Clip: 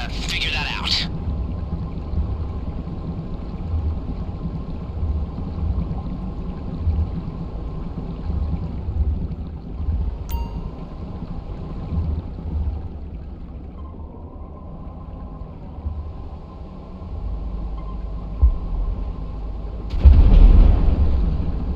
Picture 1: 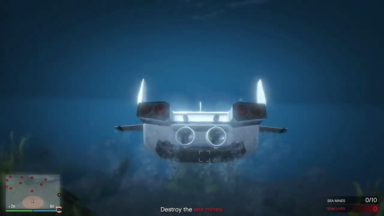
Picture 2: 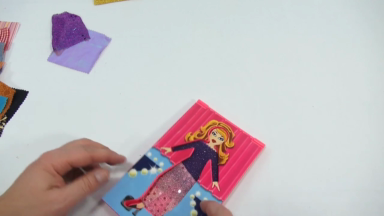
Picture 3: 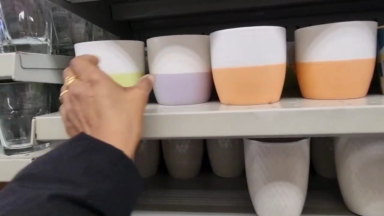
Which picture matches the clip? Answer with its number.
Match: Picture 1